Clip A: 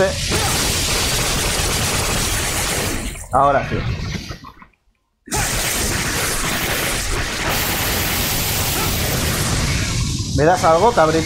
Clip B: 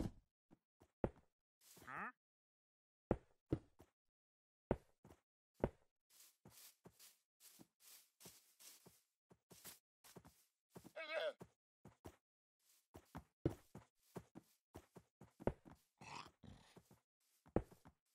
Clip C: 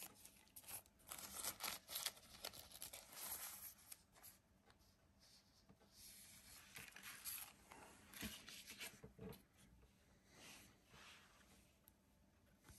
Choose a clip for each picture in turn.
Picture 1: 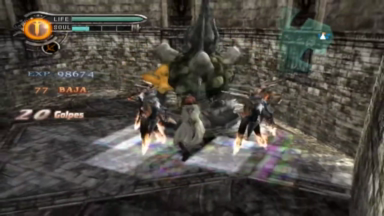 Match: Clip A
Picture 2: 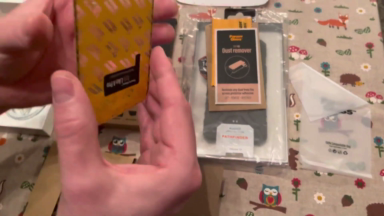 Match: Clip C